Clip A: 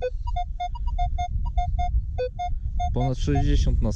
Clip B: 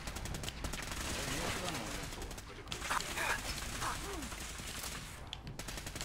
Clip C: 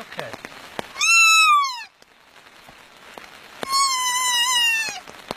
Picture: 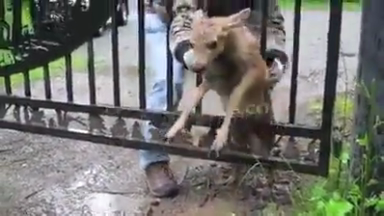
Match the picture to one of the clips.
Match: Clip C